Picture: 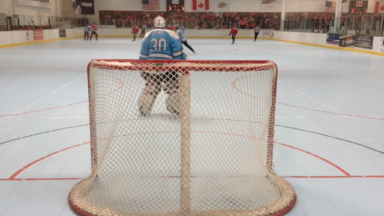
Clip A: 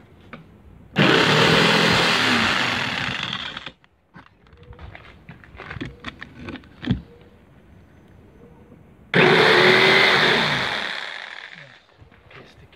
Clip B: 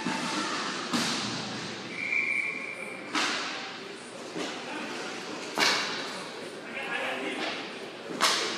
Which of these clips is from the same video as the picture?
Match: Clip B